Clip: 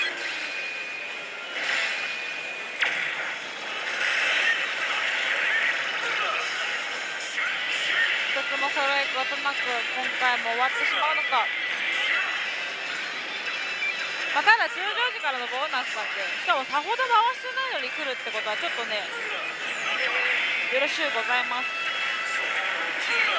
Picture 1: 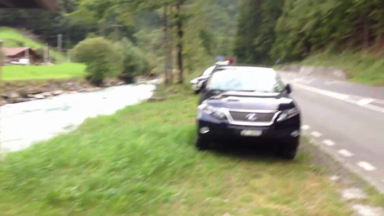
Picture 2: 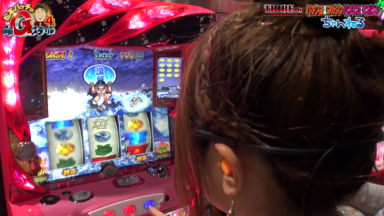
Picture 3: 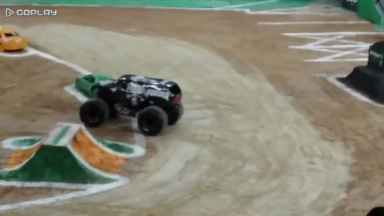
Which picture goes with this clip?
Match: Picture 2